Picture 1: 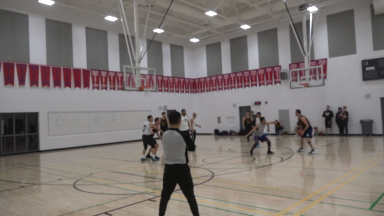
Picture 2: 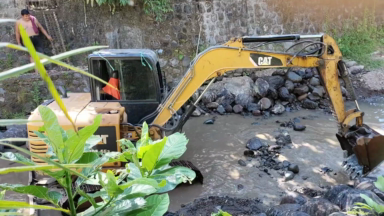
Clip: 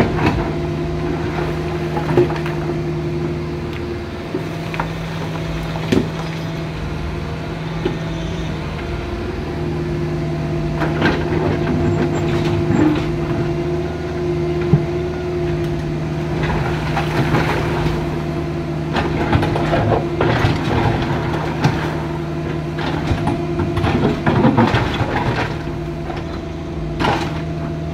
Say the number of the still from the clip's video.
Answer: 2